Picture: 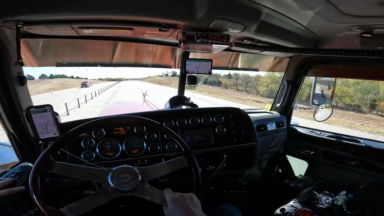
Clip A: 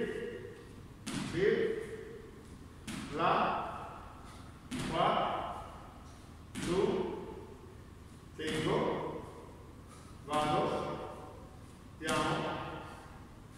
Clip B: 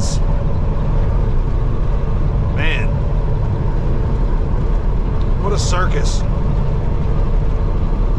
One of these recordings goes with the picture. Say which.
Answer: B